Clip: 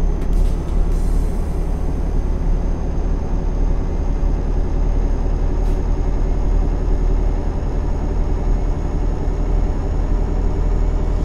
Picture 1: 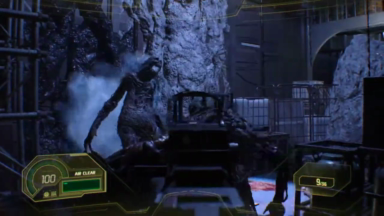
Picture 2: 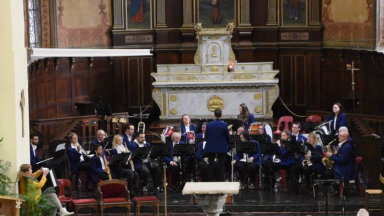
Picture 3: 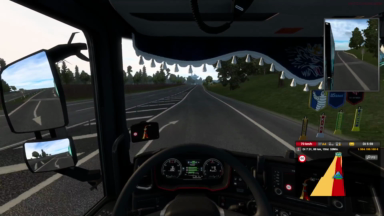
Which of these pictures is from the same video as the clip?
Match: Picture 3